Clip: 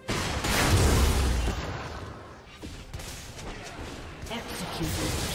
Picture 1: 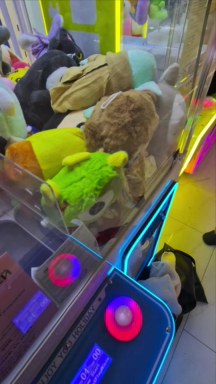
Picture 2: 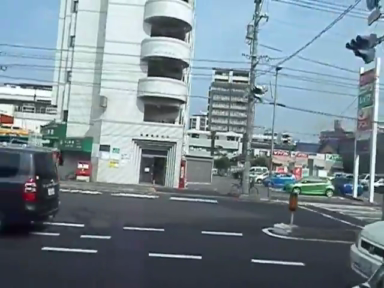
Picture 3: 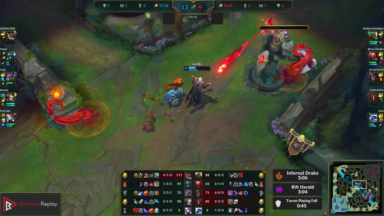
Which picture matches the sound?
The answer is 3